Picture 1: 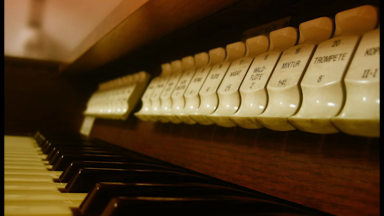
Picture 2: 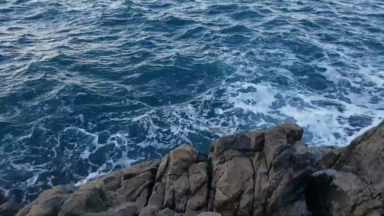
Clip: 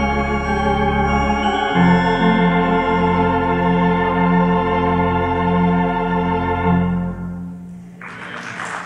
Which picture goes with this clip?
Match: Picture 1